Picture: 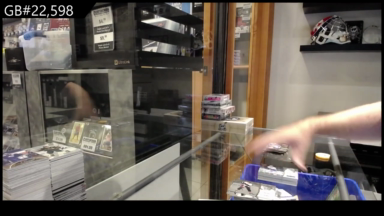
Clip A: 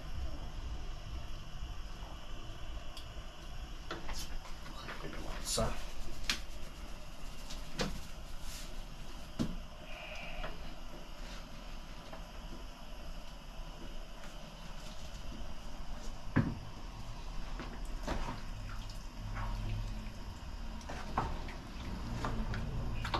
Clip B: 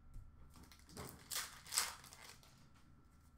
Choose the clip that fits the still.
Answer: B